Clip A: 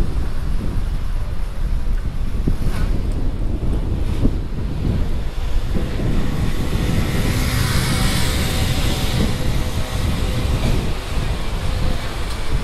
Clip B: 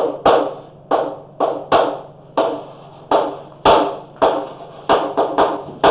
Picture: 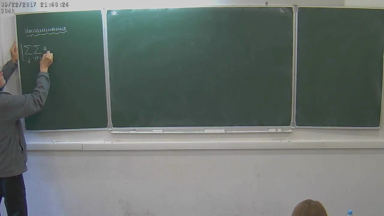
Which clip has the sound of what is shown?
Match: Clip B